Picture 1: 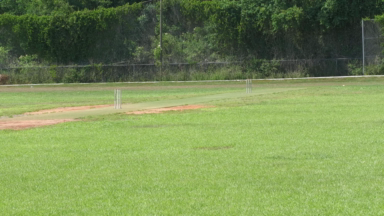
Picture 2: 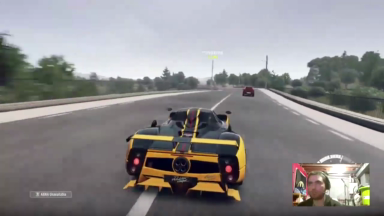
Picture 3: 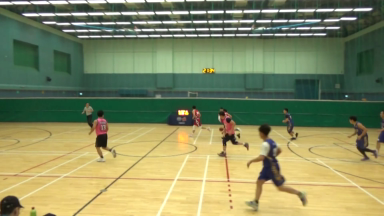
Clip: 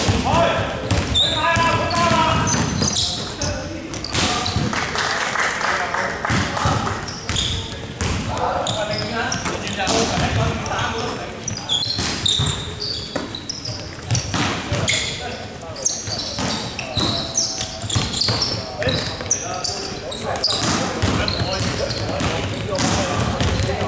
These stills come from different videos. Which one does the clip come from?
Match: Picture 3